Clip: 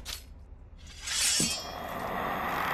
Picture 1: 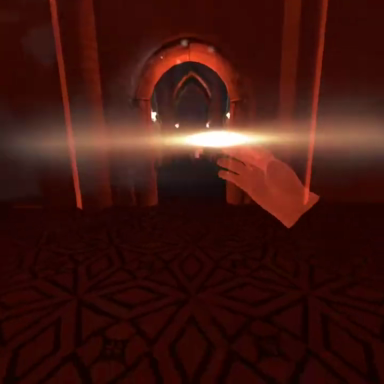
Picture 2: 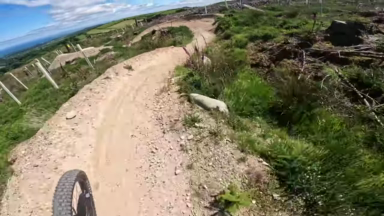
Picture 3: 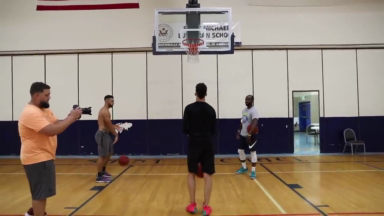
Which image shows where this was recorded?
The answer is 1